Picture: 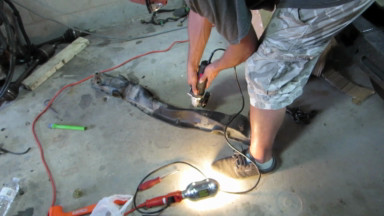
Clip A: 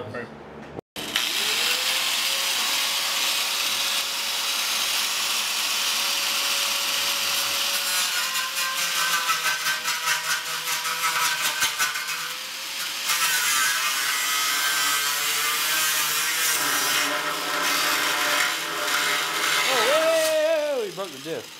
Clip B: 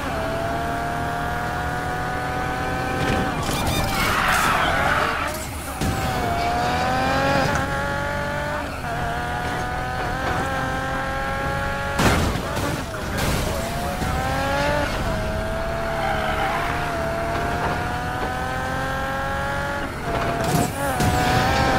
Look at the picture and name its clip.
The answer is A